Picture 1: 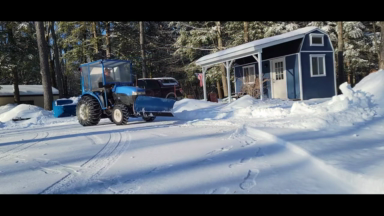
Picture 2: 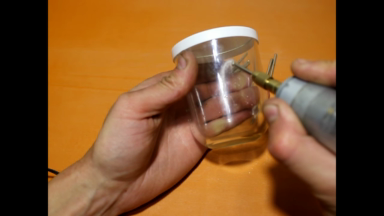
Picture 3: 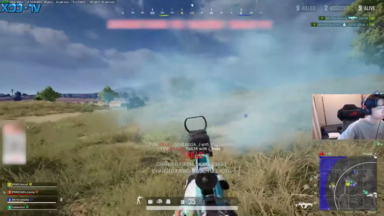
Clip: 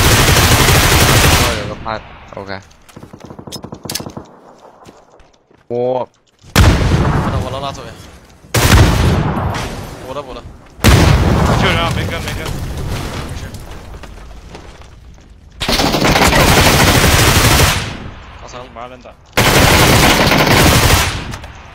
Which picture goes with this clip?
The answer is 3